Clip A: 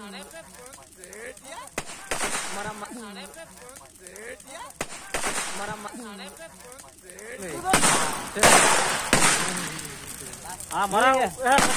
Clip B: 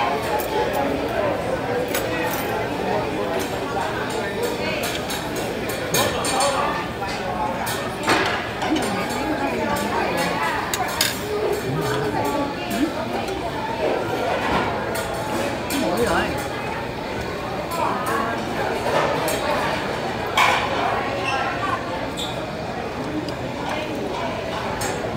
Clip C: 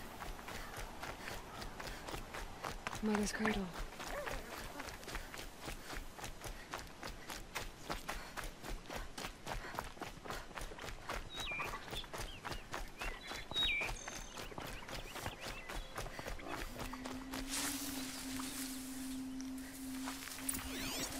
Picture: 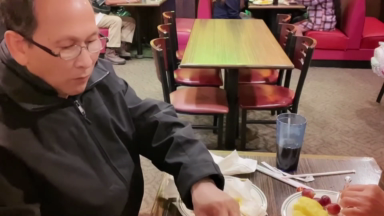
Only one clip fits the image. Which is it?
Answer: B